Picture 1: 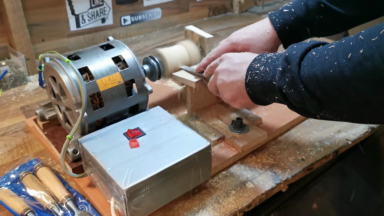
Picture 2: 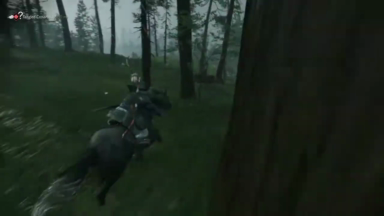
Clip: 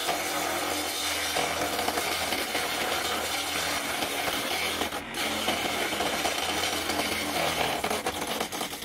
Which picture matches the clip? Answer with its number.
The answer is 1